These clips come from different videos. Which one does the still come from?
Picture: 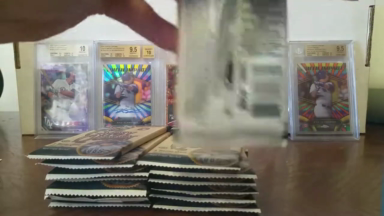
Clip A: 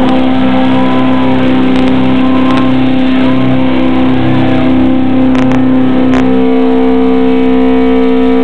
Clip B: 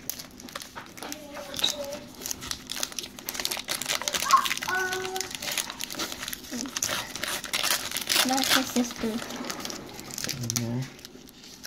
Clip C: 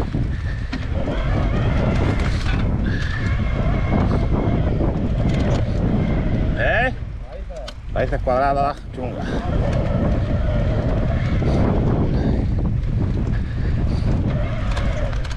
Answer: B